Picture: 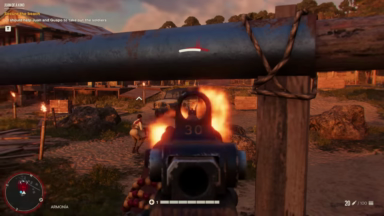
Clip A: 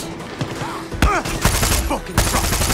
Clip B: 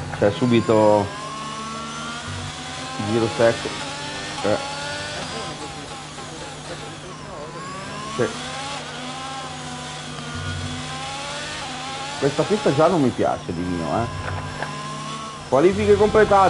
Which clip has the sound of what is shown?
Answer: A